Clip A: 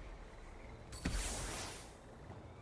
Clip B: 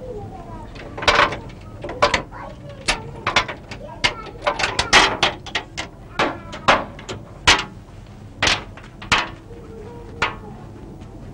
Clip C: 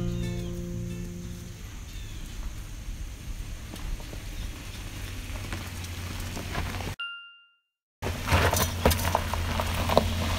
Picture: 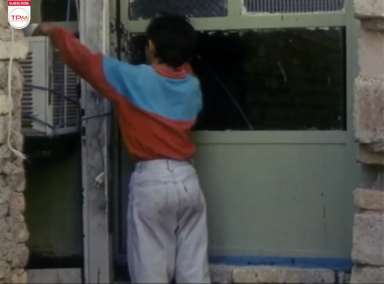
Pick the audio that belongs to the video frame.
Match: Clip B